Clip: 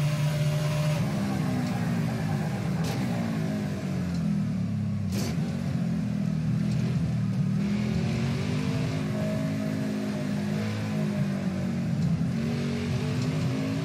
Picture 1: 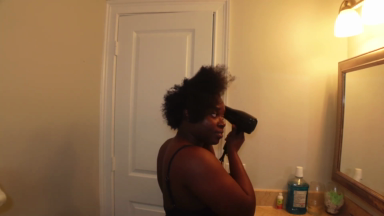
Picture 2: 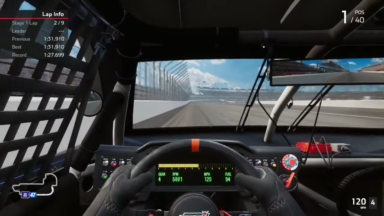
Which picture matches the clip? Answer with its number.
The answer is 2